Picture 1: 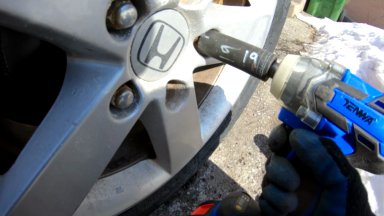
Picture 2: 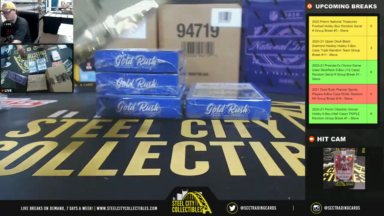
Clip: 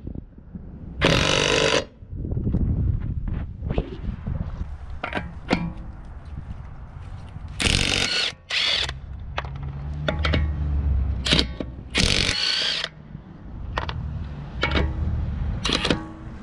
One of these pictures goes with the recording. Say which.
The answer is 1